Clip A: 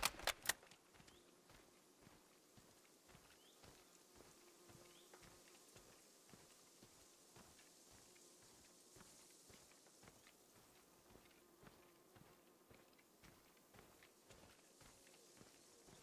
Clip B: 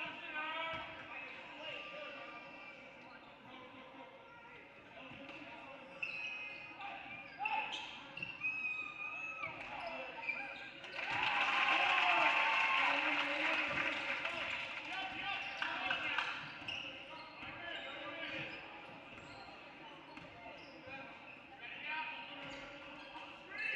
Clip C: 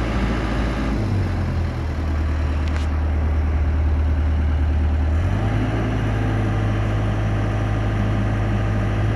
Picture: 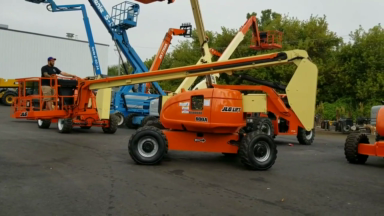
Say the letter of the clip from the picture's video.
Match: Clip C